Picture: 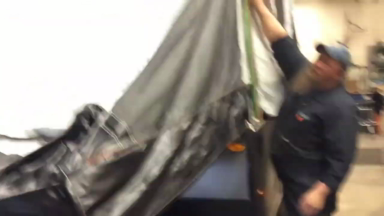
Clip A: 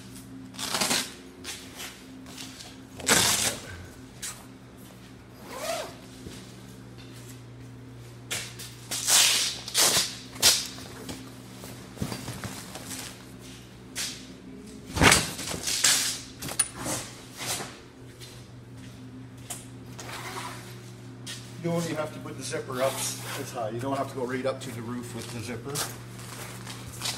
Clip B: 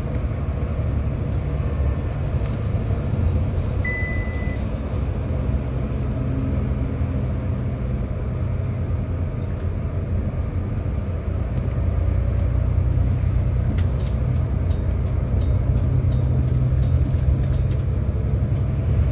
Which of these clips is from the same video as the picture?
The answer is A